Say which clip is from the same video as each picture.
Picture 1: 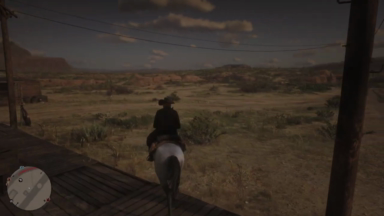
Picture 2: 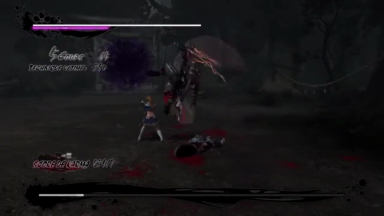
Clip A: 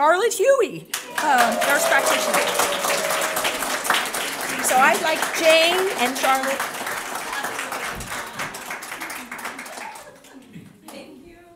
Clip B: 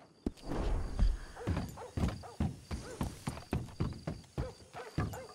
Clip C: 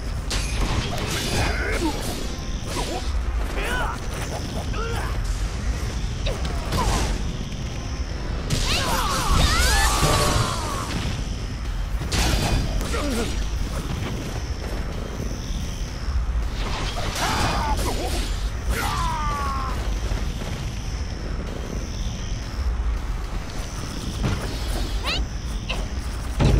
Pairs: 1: B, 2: C